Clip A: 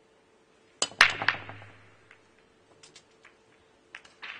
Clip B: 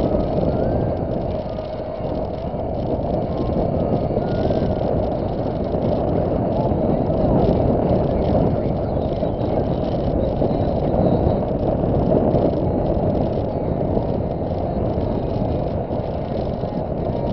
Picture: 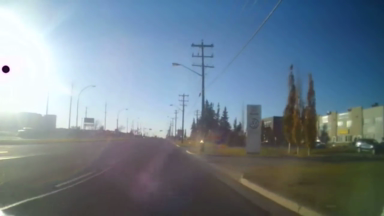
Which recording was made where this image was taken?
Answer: B